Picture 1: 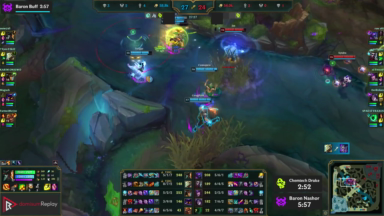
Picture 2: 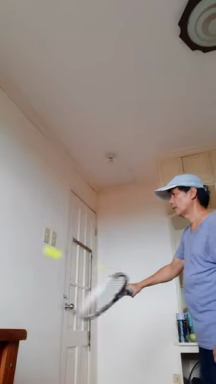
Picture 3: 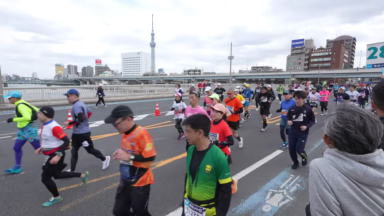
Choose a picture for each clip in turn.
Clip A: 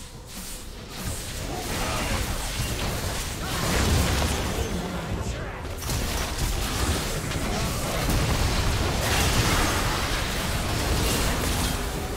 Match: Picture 1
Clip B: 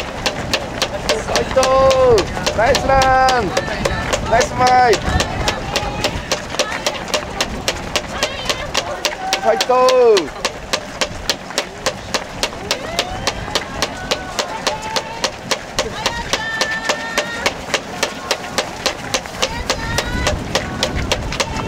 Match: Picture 3